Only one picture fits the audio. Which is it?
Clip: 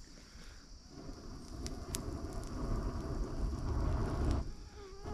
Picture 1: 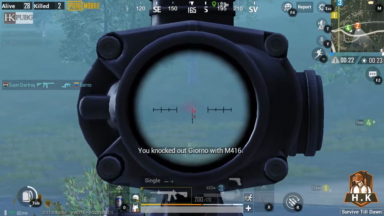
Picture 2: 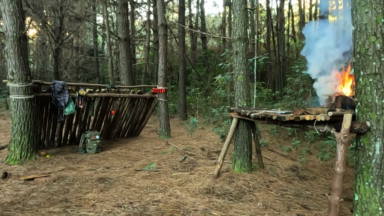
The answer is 2